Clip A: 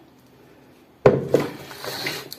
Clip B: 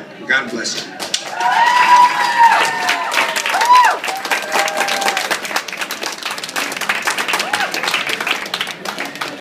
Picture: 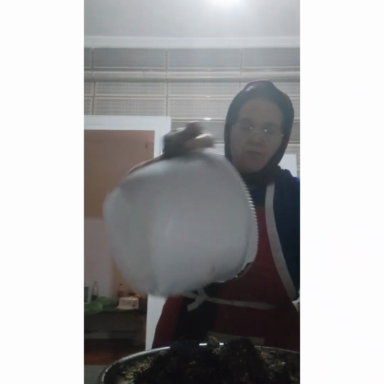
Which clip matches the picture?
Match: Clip A